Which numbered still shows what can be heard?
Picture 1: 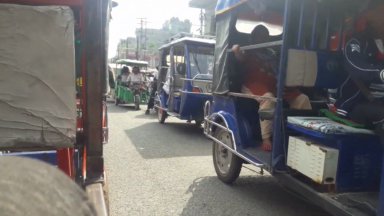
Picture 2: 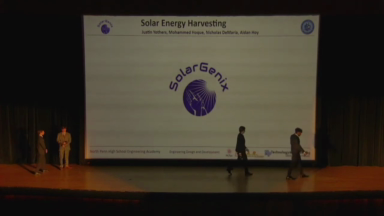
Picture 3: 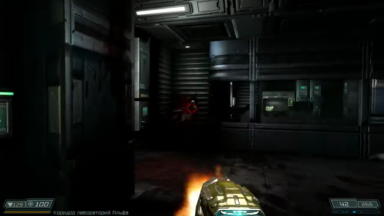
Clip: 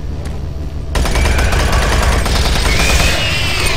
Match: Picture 3